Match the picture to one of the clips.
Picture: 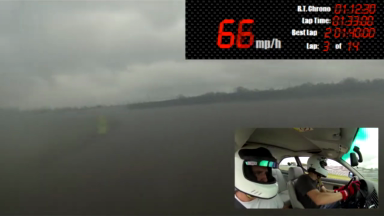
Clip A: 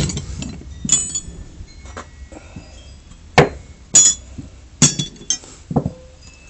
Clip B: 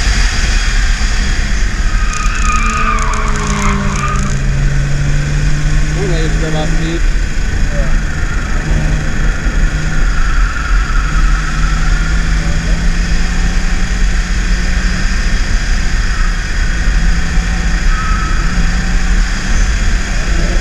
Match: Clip B